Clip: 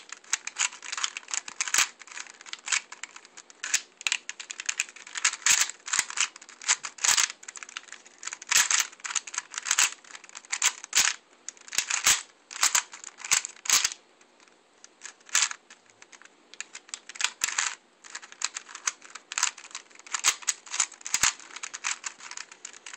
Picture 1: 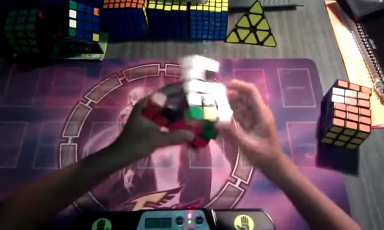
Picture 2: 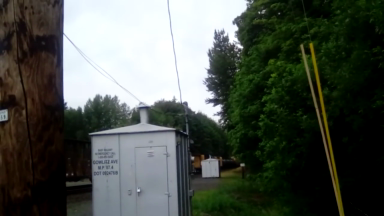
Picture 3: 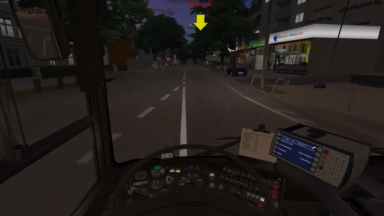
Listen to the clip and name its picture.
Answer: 1